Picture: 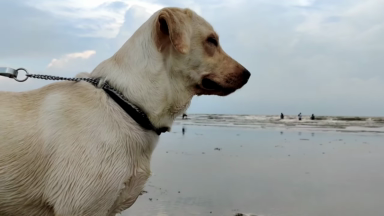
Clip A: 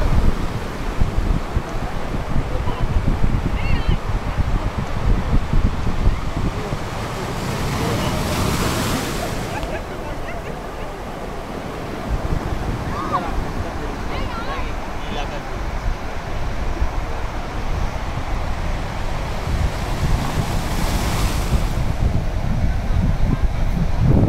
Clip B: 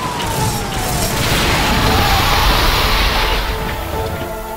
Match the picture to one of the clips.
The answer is A